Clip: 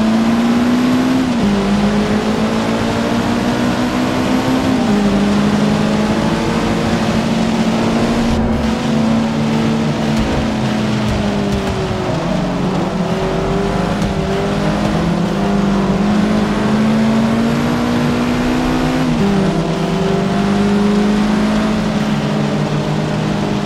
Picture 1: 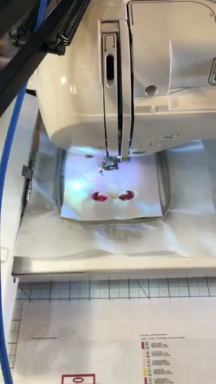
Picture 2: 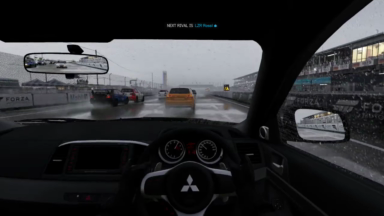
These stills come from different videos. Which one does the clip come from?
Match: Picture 2